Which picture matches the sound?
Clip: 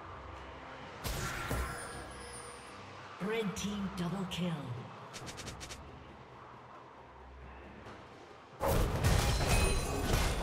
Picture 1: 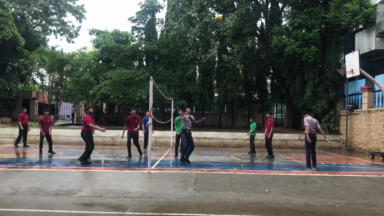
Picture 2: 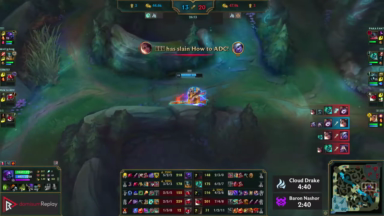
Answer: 2